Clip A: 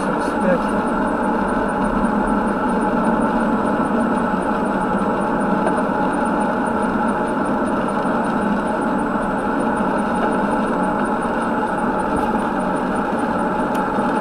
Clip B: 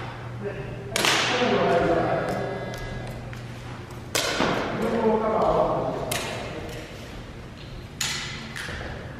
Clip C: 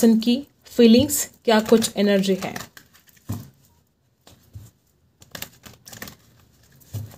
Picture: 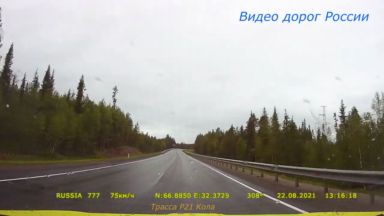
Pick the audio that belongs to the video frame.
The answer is A